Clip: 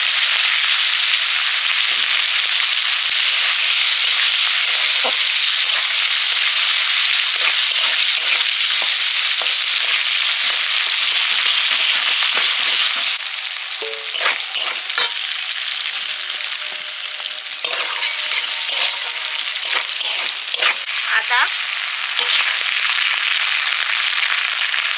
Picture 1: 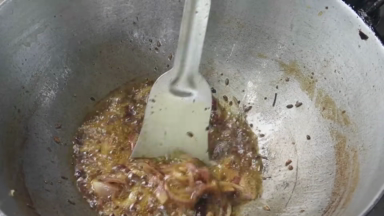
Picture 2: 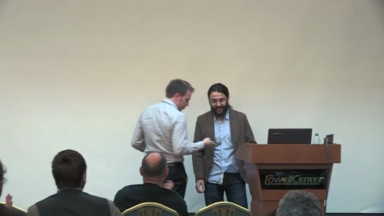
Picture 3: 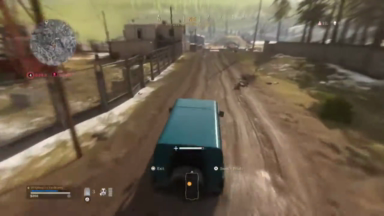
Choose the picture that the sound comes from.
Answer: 1